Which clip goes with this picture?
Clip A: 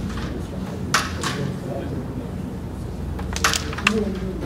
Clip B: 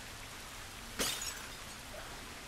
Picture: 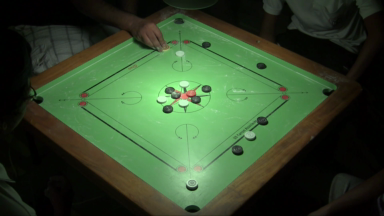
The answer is A